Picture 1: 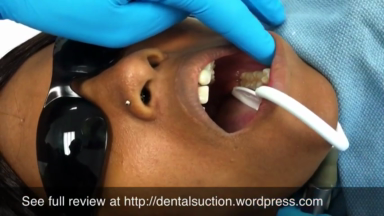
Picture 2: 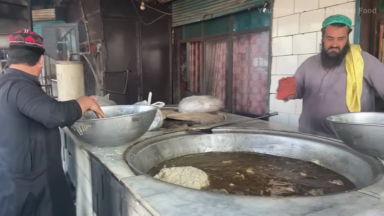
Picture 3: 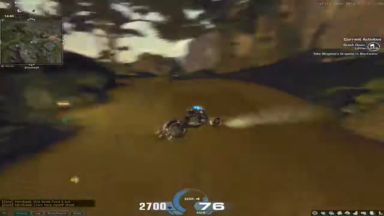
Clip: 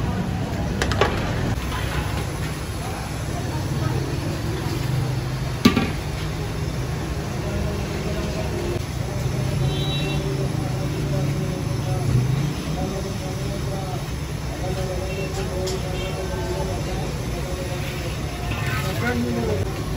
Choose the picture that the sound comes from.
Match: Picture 2